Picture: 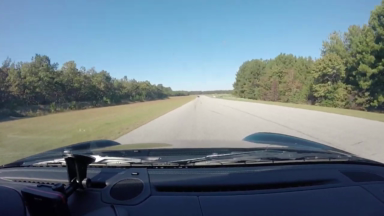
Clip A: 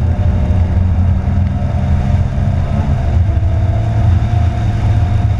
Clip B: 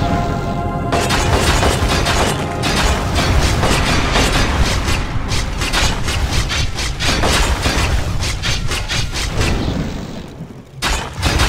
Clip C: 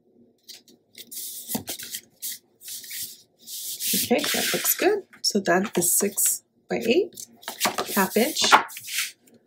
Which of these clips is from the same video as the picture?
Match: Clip A